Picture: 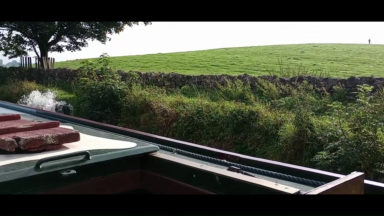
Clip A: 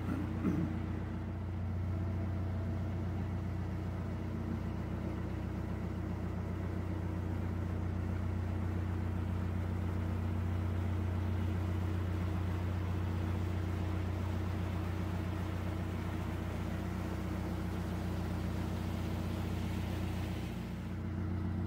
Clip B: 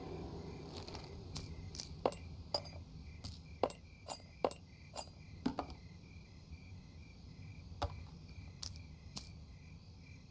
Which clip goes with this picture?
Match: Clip A